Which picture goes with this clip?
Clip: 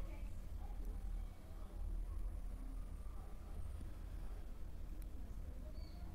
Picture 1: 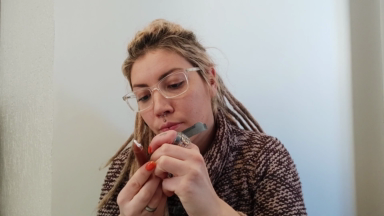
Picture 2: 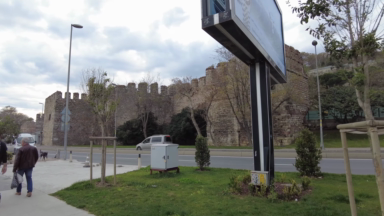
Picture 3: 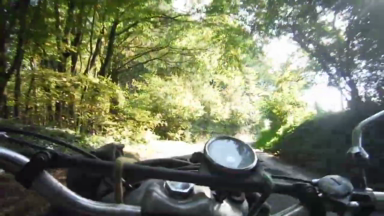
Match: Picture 1